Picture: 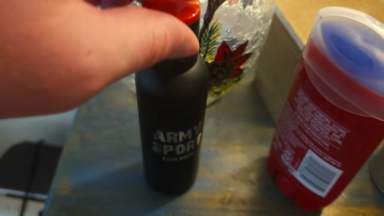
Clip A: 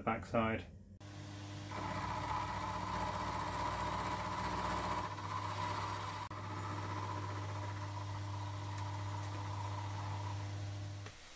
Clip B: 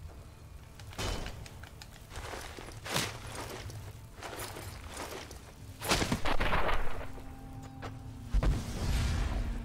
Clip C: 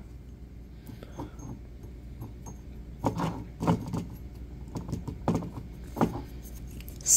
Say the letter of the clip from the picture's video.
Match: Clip C